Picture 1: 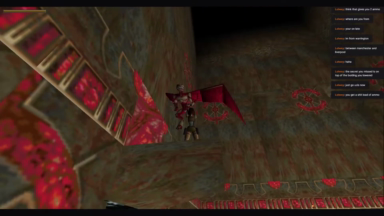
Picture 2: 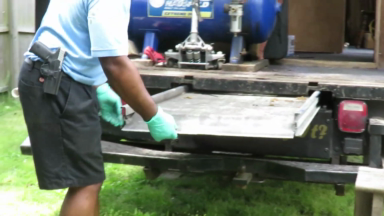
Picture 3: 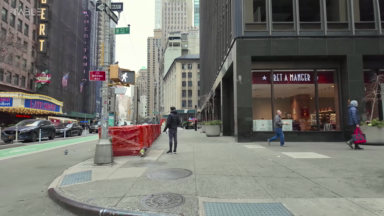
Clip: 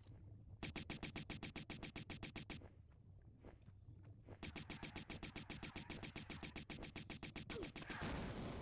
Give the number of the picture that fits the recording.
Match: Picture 1